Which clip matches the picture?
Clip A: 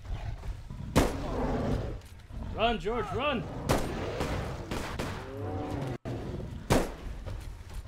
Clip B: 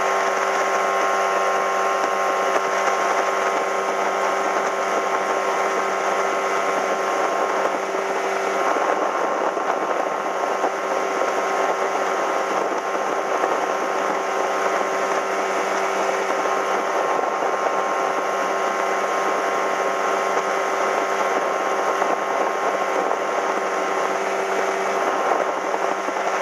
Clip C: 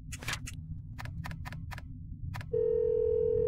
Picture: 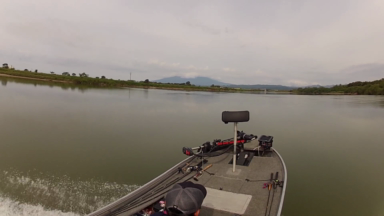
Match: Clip B